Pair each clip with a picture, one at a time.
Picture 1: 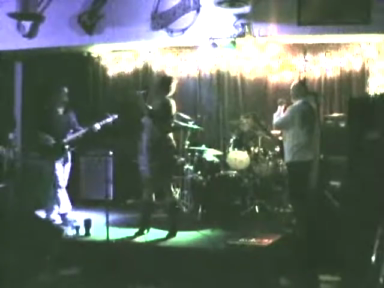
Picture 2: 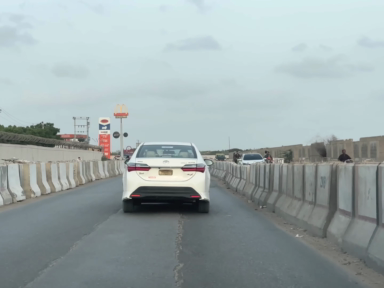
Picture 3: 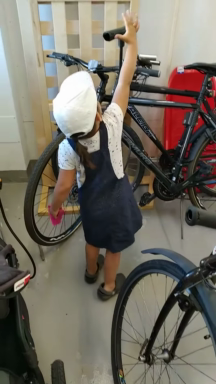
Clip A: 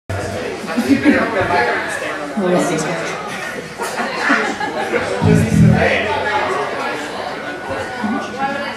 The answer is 1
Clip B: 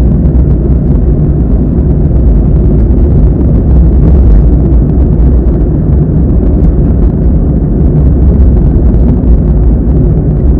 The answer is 2